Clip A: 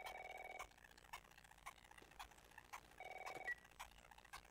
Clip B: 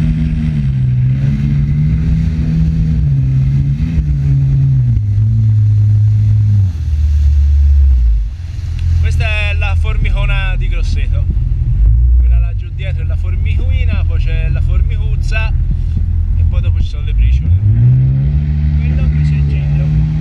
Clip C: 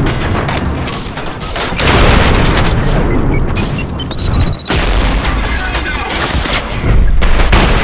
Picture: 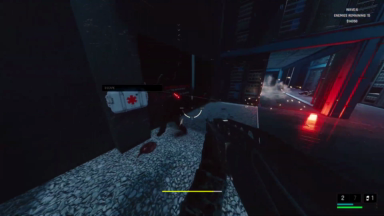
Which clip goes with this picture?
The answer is C